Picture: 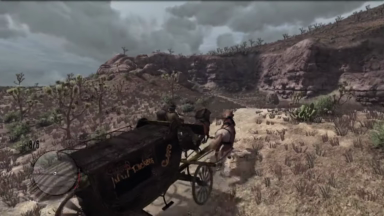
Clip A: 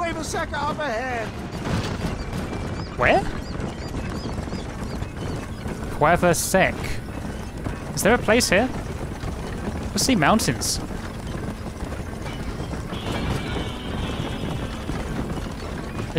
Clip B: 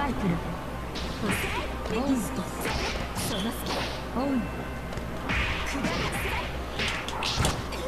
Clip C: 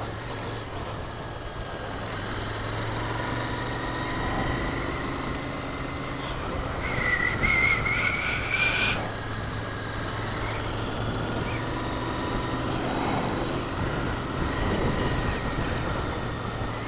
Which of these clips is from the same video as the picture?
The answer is A